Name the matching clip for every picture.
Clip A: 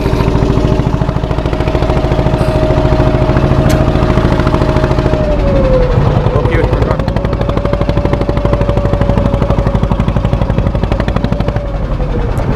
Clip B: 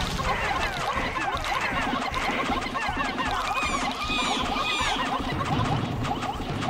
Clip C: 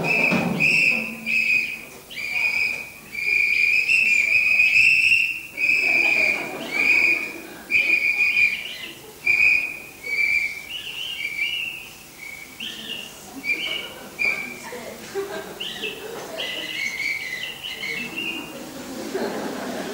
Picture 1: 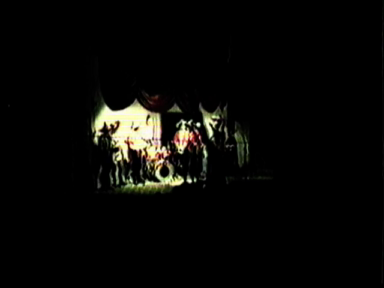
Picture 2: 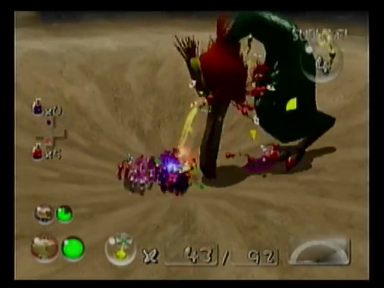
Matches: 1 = C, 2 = B